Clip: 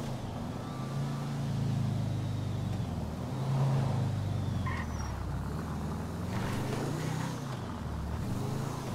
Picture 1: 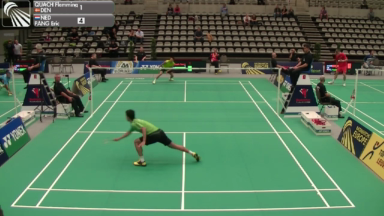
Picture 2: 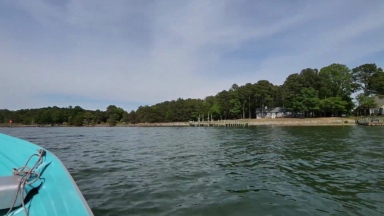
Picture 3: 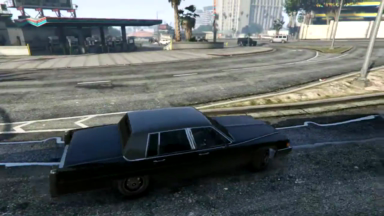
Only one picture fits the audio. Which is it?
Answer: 3